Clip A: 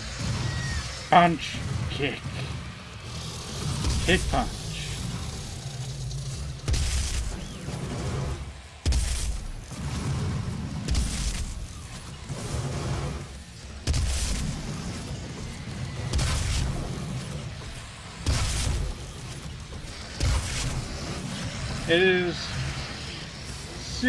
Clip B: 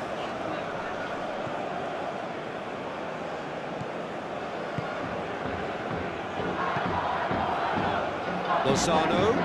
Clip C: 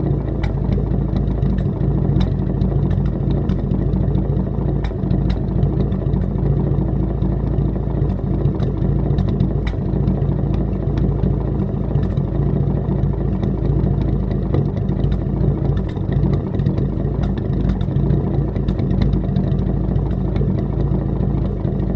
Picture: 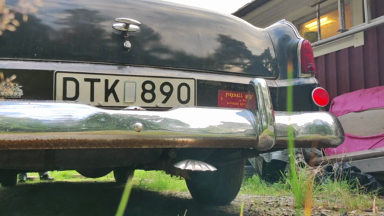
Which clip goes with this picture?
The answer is C